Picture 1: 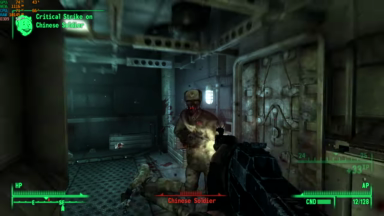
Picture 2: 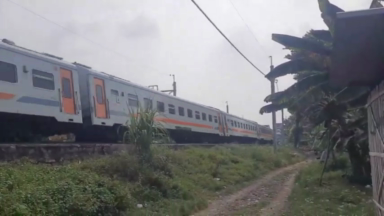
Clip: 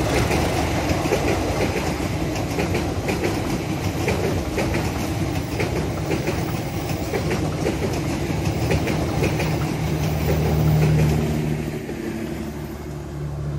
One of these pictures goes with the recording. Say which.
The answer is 2